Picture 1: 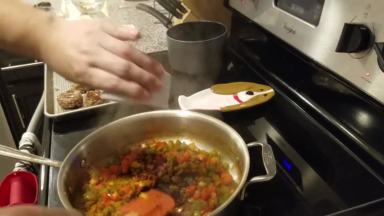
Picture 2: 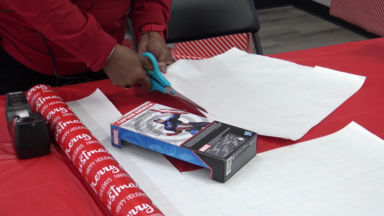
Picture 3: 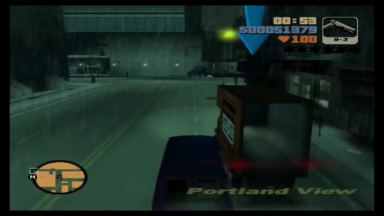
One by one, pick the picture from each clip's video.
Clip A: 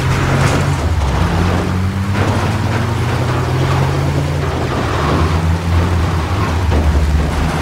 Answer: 3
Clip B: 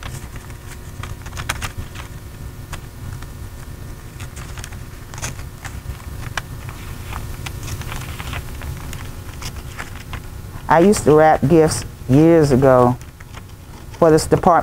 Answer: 2